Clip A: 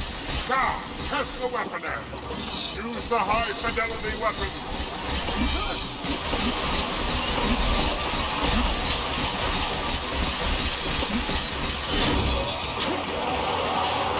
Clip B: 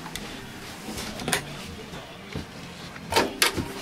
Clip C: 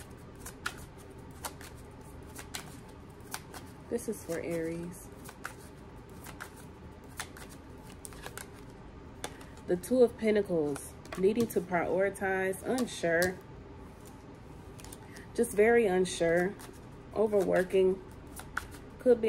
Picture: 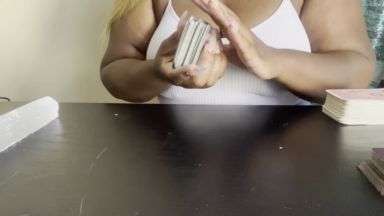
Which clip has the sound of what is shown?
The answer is C